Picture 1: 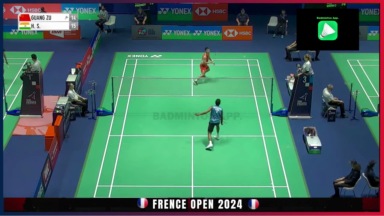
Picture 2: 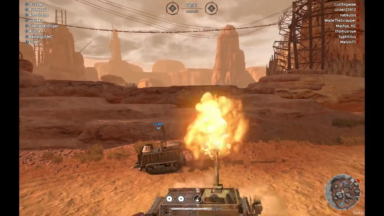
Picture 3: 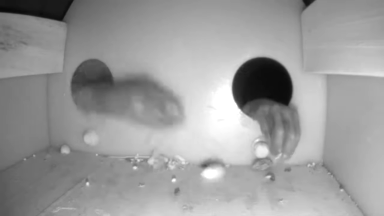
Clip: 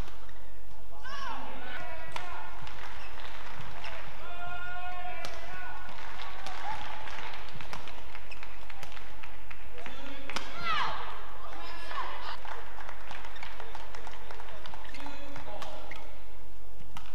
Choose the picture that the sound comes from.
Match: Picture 1